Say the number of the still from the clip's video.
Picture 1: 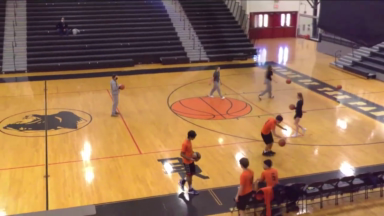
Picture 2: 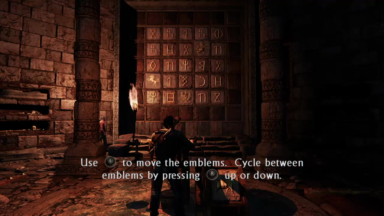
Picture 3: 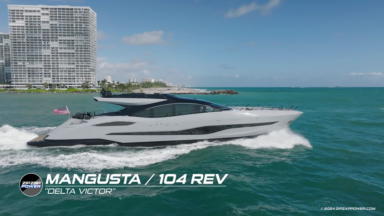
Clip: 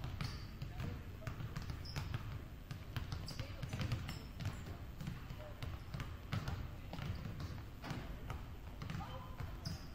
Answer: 1